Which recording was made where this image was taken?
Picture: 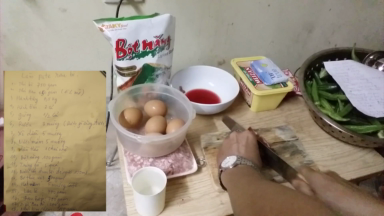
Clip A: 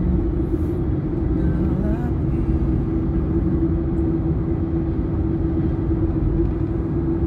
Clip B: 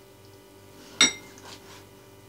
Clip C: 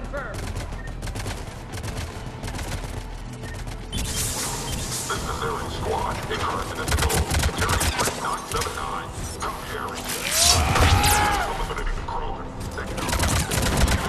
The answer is B